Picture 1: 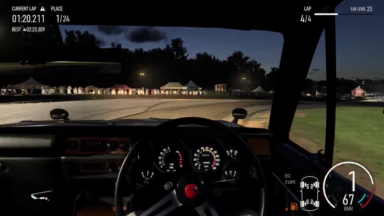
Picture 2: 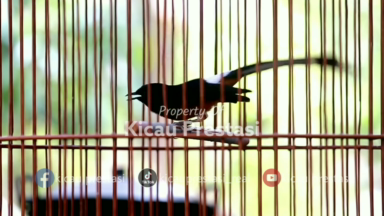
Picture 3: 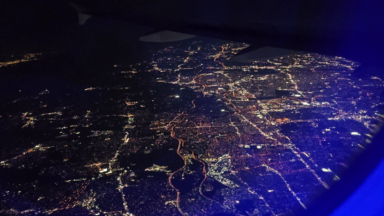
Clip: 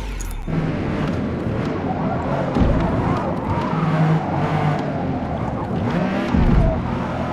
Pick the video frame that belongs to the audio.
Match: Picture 1